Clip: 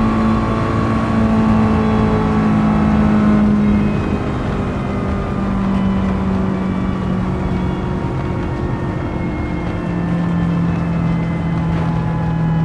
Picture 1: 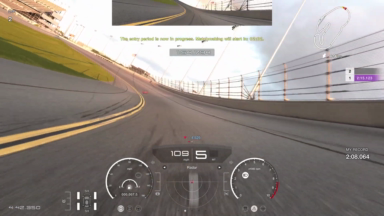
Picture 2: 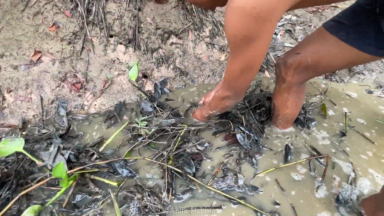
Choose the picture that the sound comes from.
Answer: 1